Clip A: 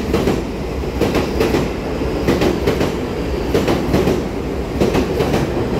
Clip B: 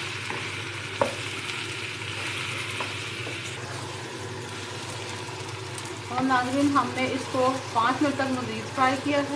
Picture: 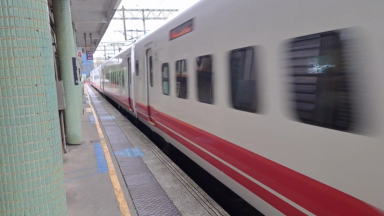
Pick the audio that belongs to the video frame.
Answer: A